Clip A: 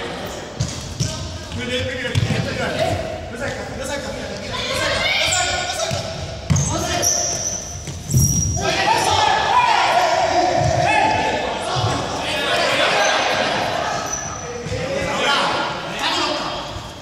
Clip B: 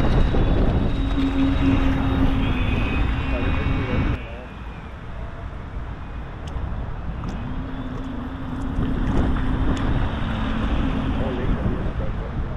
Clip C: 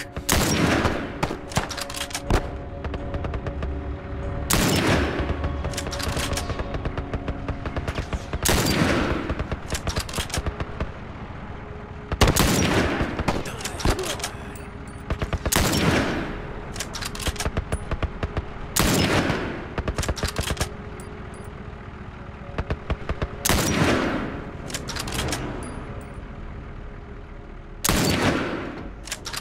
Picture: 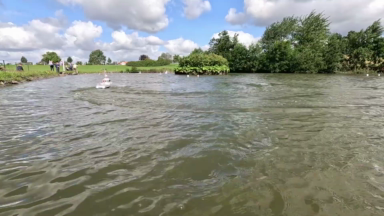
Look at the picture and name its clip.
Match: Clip B